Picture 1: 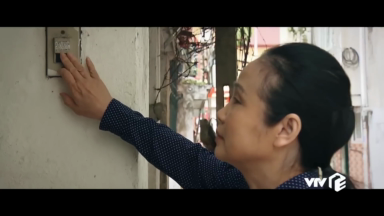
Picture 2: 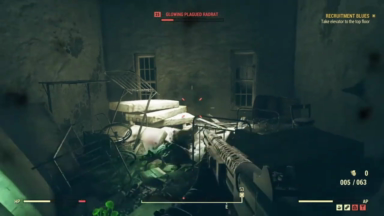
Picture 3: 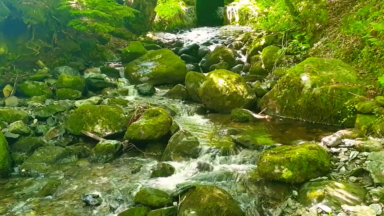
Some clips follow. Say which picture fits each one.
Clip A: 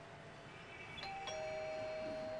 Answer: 1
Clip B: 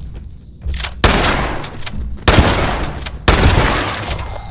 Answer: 2